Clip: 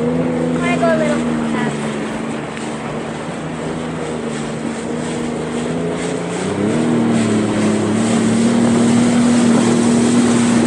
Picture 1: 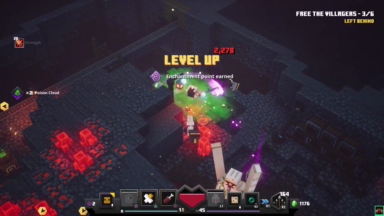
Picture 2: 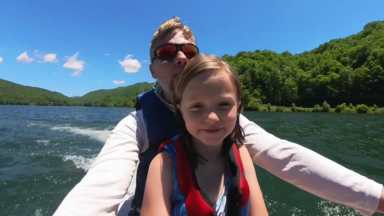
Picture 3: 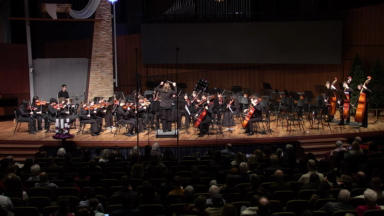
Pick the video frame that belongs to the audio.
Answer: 2